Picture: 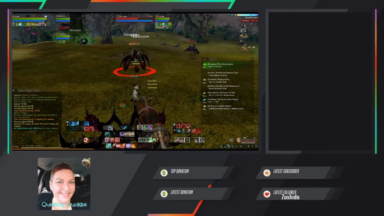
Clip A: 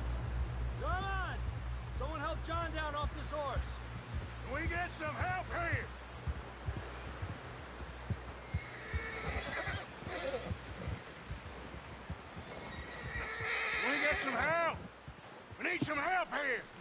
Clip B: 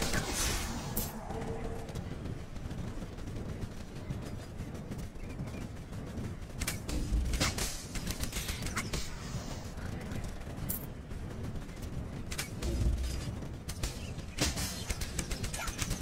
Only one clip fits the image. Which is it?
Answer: B